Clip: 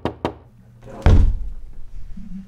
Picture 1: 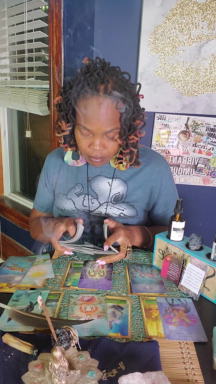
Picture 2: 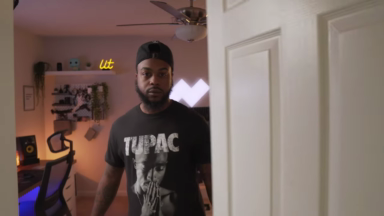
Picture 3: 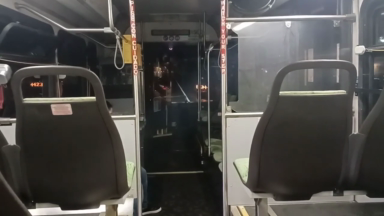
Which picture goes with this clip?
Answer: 2